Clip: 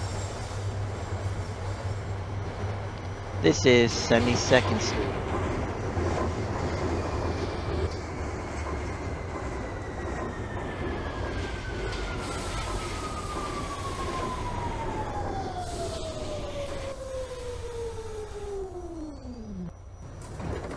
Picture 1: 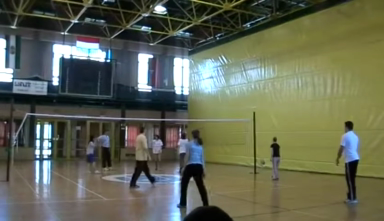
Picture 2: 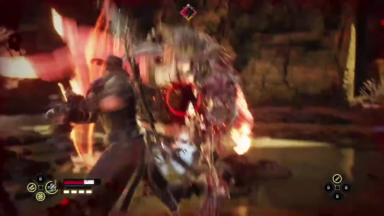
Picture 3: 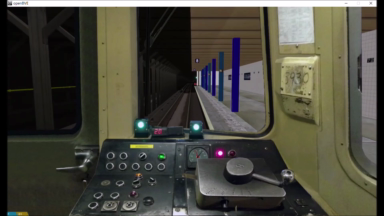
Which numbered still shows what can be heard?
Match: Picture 3